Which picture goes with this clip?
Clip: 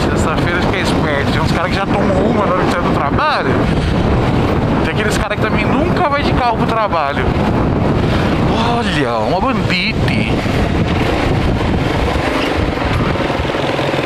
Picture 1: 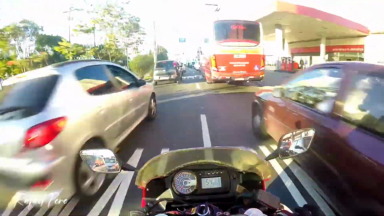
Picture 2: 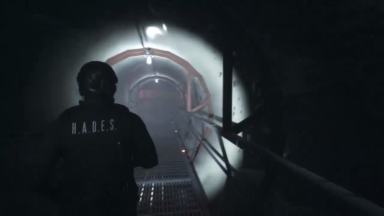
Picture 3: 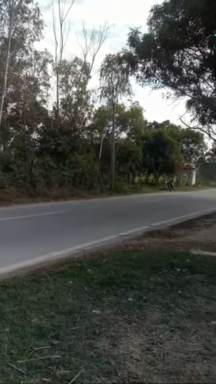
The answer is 1